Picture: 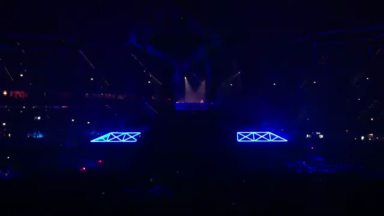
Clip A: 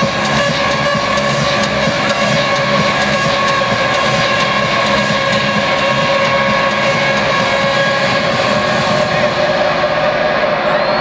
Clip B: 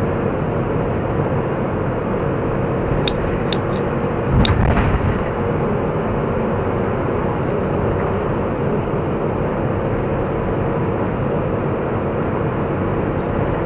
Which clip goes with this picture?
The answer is A